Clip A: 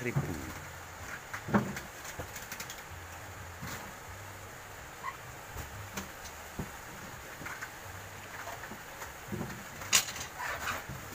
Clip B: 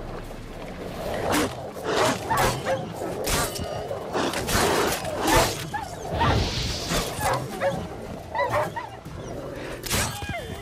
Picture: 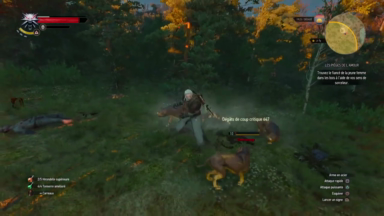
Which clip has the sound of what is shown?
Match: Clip B